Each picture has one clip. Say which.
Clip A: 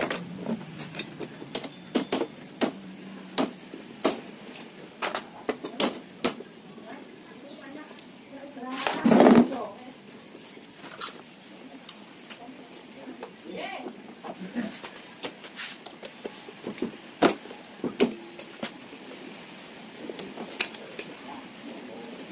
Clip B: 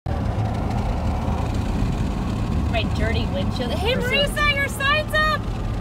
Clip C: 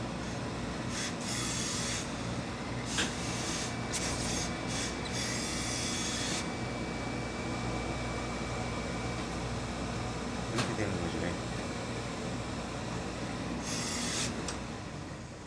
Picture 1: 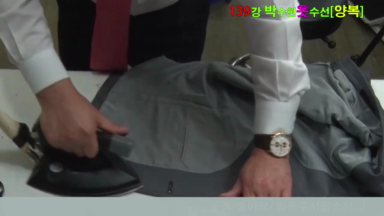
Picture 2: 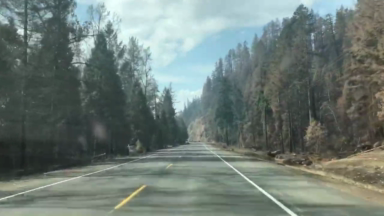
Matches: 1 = C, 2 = B